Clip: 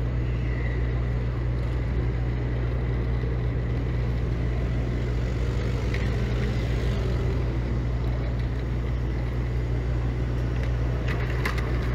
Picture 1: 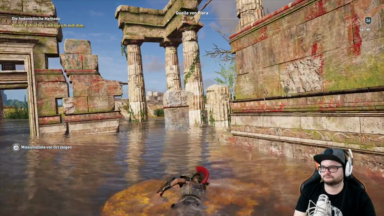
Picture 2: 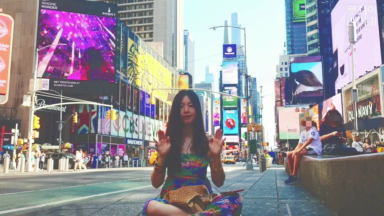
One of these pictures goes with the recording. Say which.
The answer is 2